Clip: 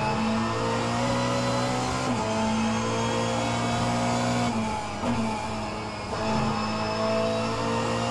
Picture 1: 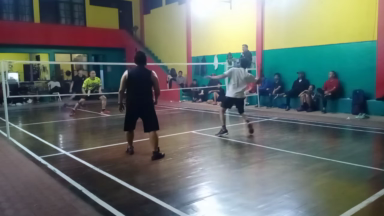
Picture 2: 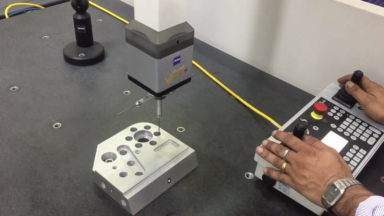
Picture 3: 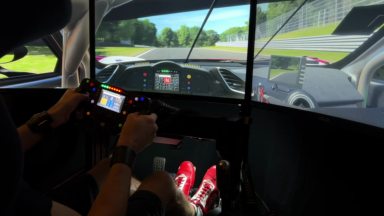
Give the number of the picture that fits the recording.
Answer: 3